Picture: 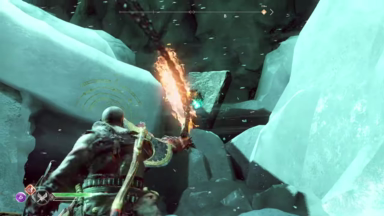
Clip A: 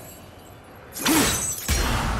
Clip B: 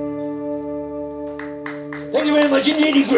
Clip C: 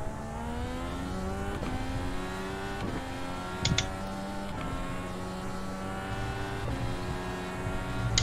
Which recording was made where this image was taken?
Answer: A